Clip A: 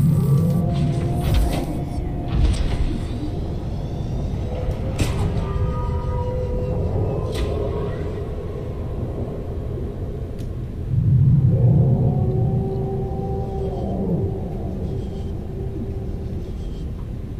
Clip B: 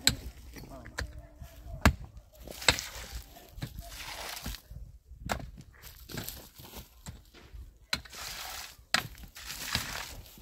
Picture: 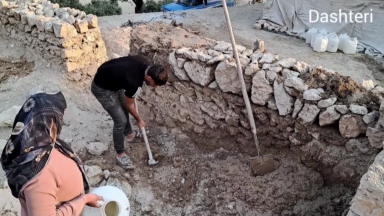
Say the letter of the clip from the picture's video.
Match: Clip B